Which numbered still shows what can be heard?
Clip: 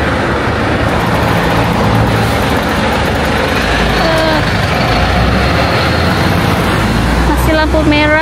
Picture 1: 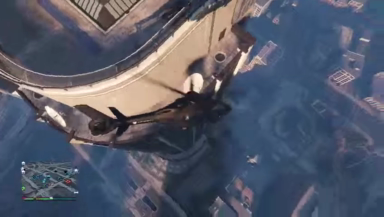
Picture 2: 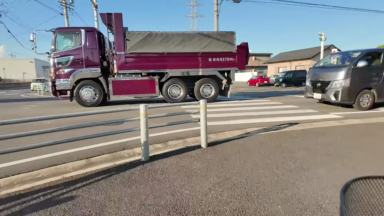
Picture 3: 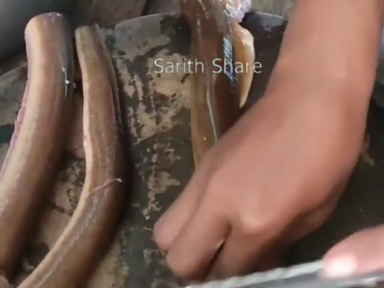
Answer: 2